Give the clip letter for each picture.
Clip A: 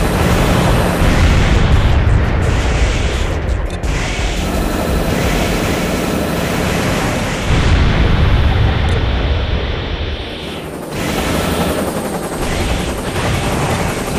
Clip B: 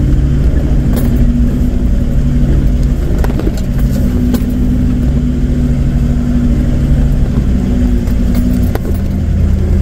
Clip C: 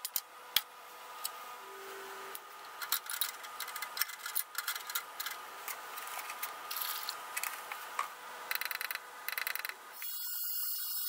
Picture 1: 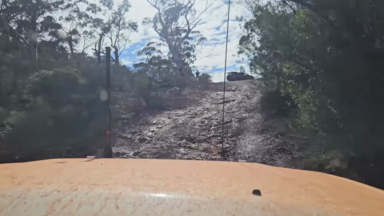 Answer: B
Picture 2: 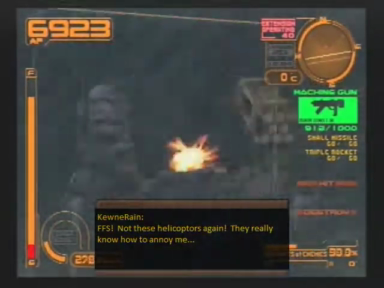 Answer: A